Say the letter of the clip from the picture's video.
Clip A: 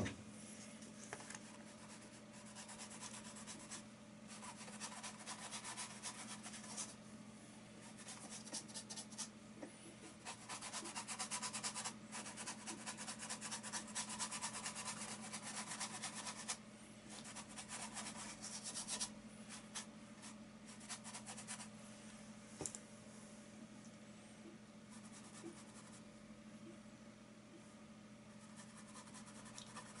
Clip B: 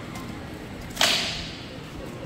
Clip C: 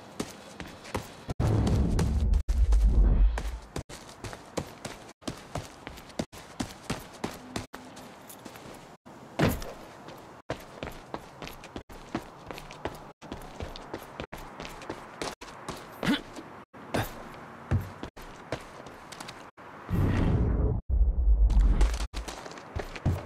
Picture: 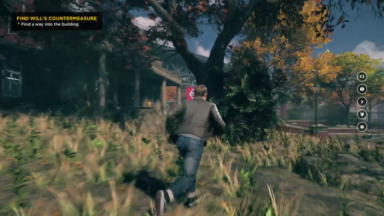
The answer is C